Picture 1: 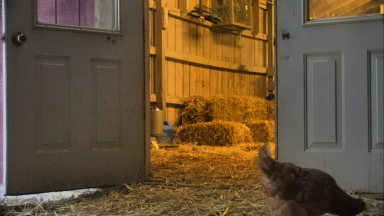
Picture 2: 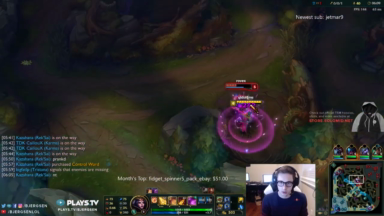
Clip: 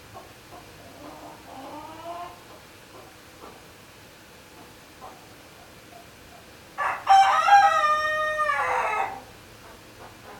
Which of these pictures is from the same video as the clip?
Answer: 1